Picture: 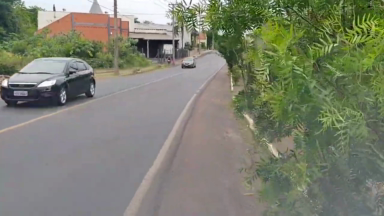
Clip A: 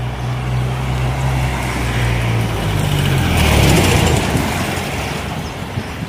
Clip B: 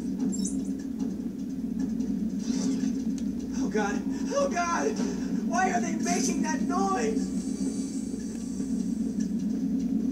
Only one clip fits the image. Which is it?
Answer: A